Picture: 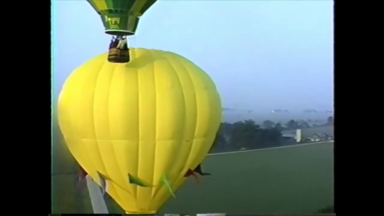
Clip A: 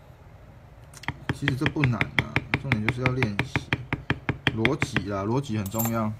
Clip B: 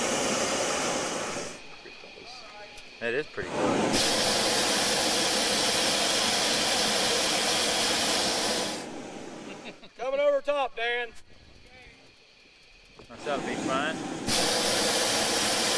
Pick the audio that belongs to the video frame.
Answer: B